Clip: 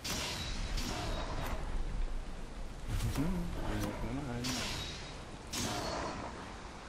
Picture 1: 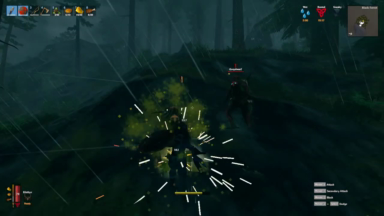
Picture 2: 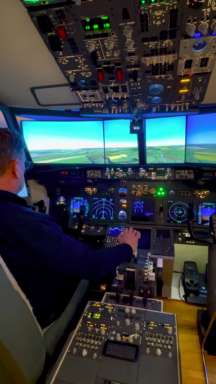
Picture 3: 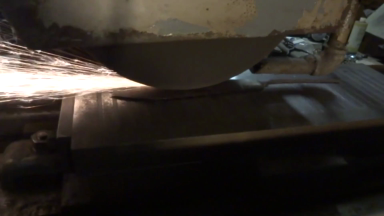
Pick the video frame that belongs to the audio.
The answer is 1